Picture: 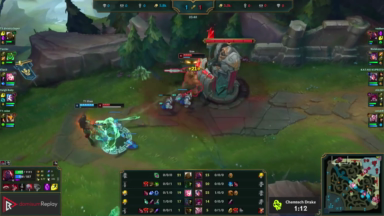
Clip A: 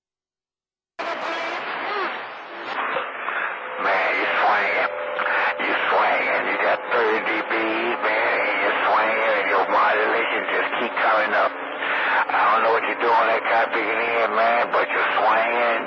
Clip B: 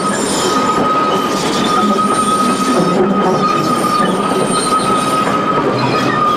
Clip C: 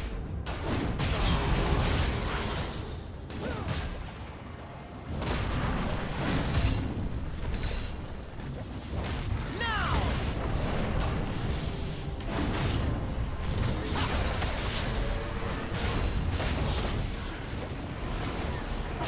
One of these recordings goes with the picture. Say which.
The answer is C